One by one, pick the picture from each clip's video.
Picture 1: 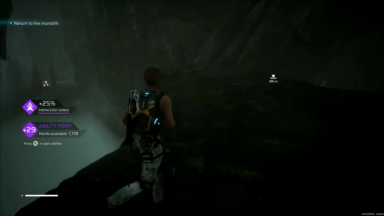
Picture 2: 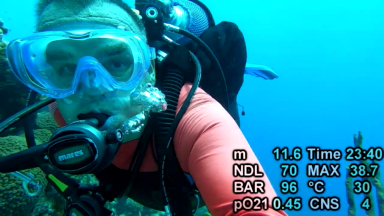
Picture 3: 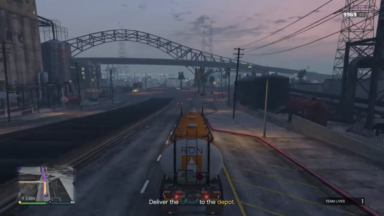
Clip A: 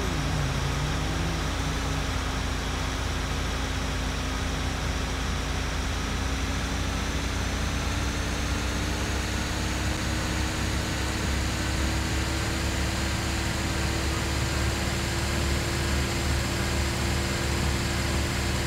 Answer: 3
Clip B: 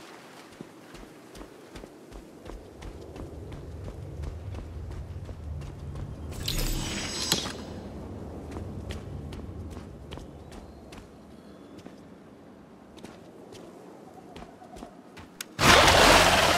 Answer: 1